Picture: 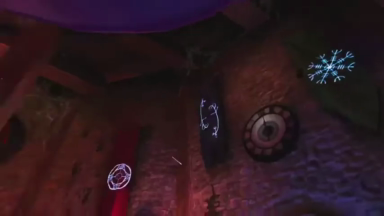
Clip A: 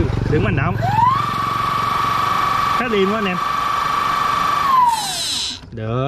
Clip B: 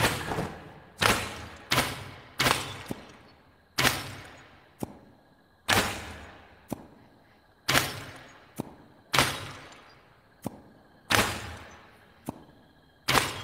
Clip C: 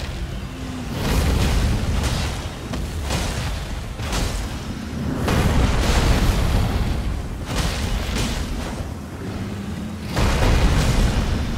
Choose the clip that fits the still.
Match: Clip B